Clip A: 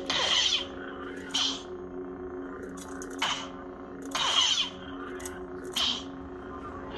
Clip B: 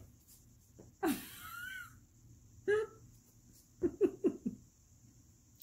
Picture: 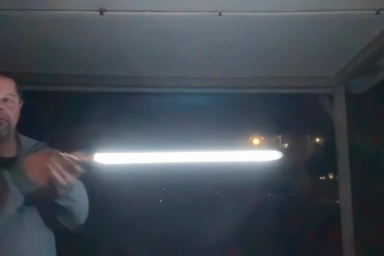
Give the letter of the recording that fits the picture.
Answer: A